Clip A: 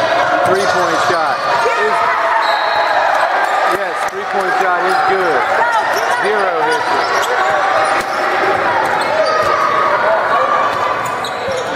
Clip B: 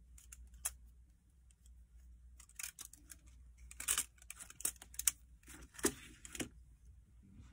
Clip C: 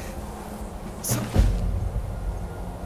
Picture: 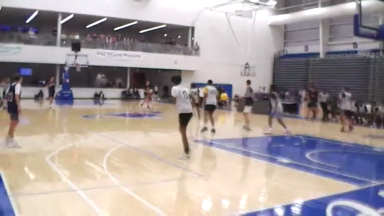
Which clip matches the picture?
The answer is A